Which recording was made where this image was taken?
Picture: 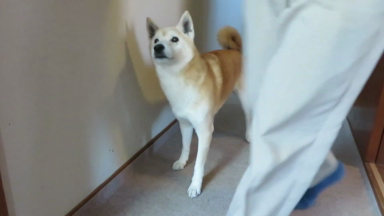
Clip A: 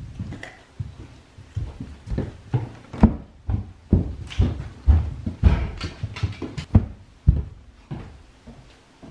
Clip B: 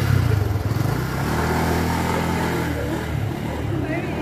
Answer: A